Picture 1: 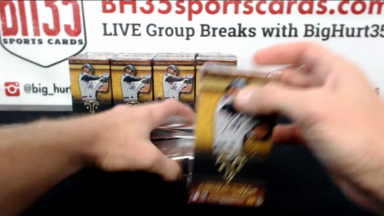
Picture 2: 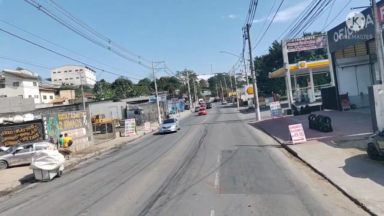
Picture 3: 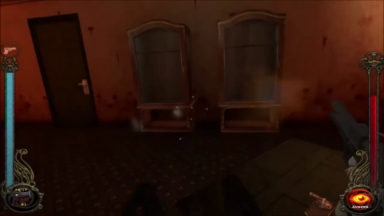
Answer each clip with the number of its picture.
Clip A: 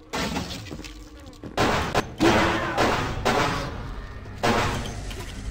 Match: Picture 3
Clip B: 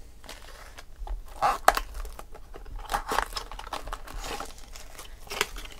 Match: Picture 1